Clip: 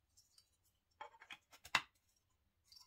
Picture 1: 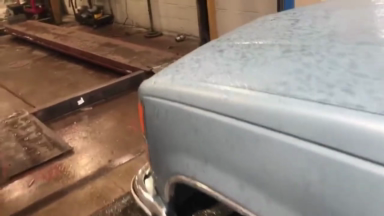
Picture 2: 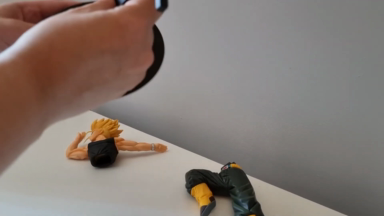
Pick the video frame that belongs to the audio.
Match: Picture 2